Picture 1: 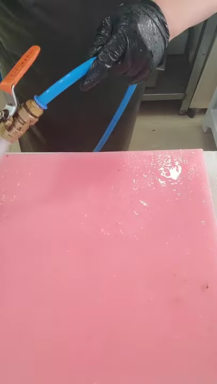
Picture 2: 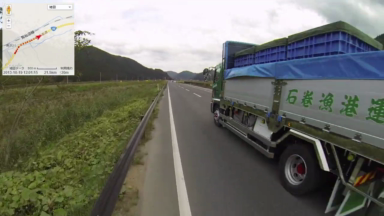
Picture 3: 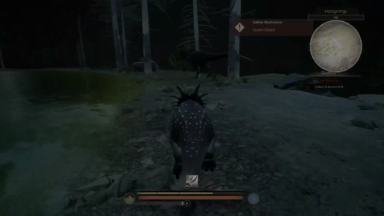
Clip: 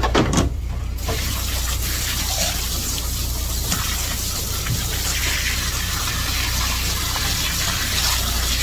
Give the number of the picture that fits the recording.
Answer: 1